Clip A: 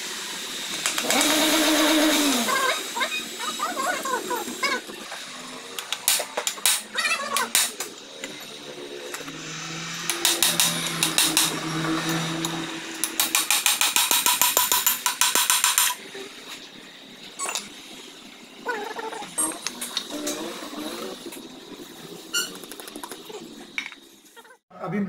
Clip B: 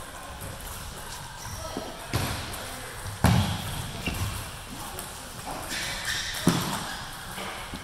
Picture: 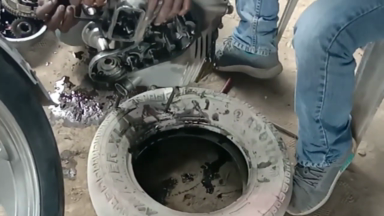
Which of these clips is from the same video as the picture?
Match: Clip A